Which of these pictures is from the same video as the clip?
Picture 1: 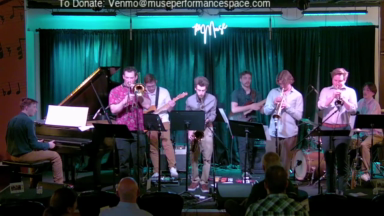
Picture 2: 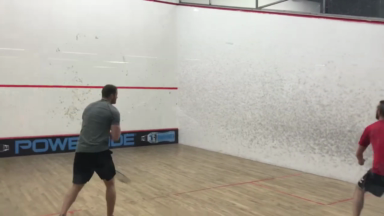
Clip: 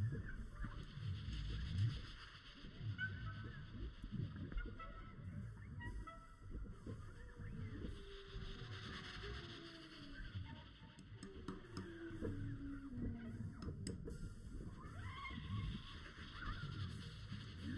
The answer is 1